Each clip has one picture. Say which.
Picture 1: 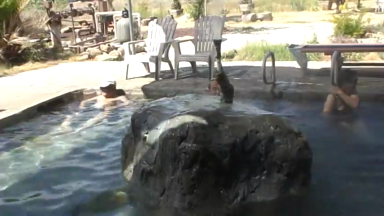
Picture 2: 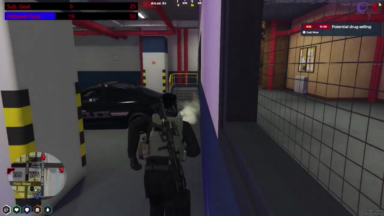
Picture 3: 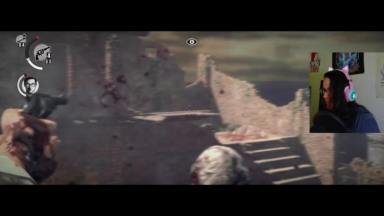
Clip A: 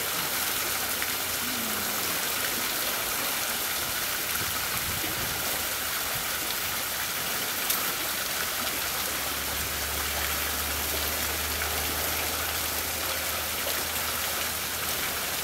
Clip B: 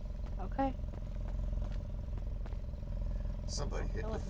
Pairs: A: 1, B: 2